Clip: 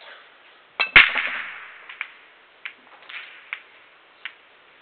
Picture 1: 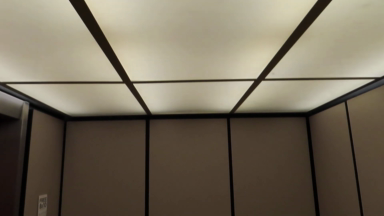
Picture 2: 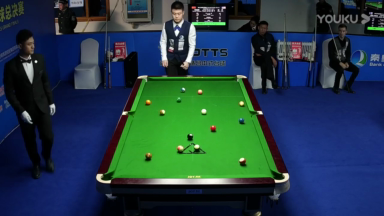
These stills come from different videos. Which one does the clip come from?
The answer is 2